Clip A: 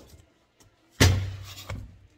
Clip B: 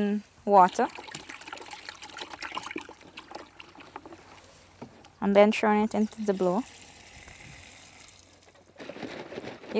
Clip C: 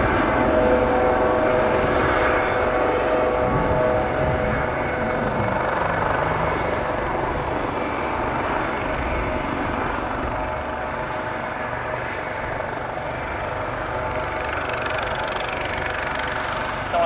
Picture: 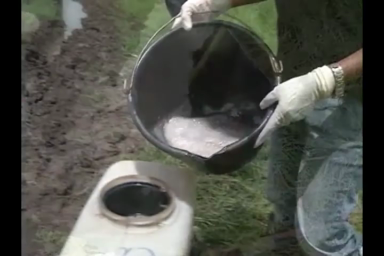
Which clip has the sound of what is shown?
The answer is B